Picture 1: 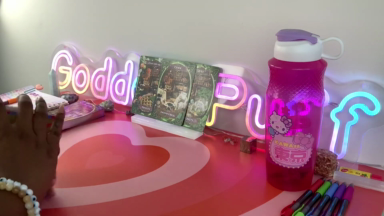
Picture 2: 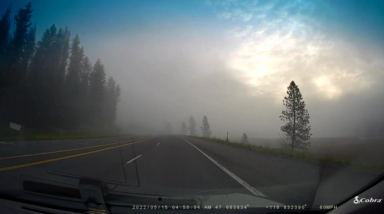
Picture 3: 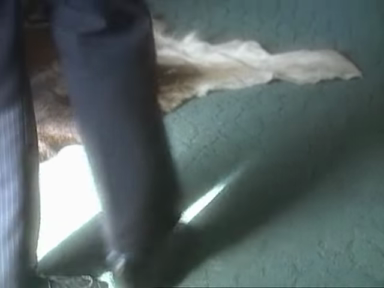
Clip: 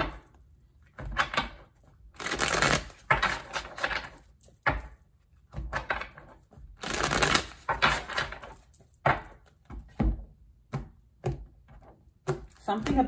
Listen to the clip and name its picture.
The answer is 1